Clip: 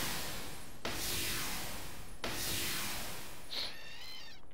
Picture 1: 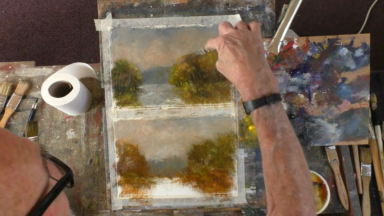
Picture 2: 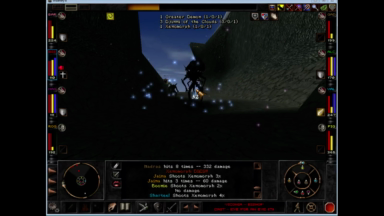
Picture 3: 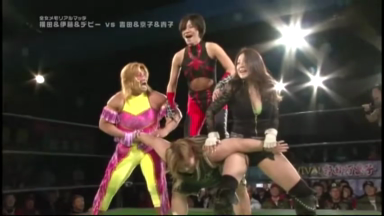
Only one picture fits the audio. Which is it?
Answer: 2